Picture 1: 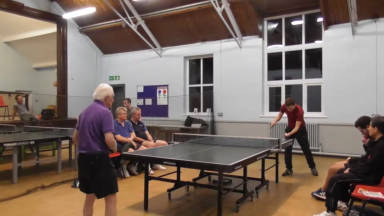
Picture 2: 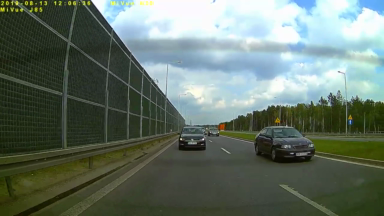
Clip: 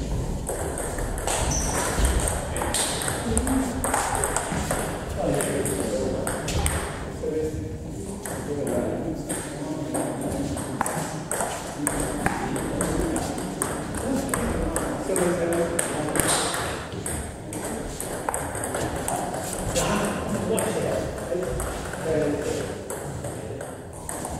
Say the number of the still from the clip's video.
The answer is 1